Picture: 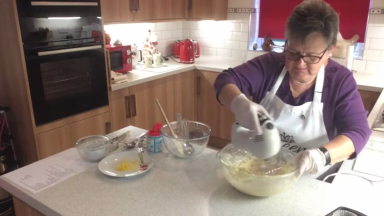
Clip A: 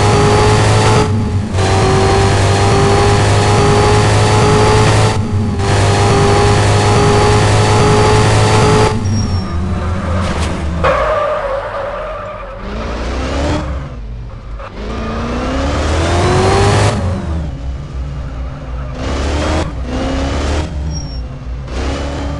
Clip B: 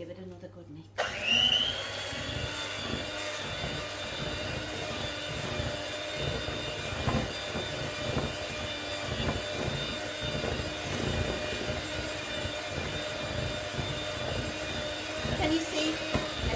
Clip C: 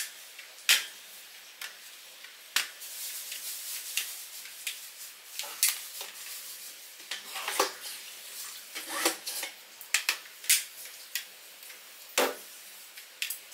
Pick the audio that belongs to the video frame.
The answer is B